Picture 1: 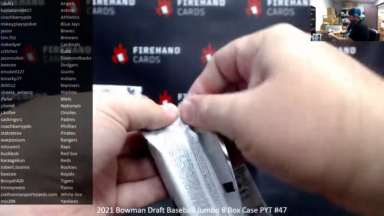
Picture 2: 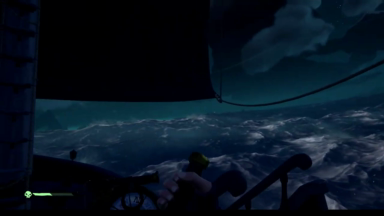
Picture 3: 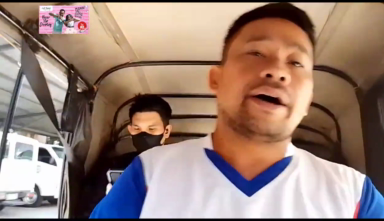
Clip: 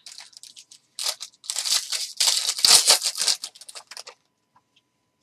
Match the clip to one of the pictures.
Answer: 1